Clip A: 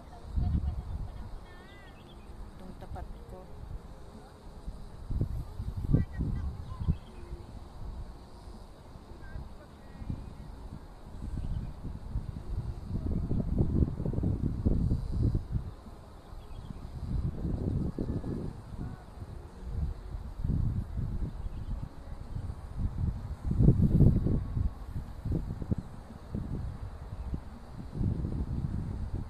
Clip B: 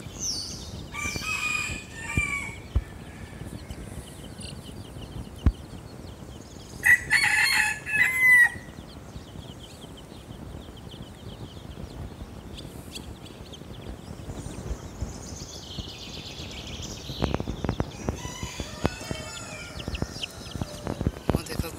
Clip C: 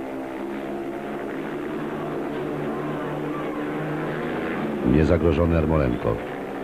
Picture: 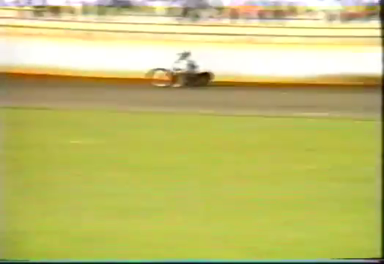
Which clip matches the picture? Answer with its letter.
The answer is C